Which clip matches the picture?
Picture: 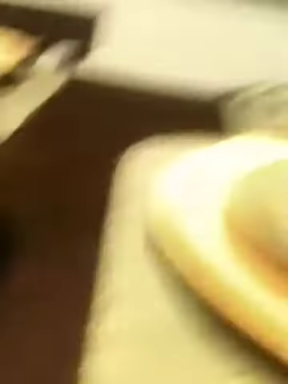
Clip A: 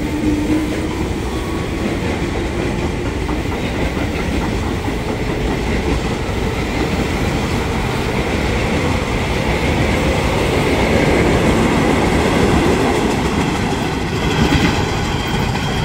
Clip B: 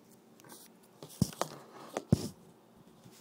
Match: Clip B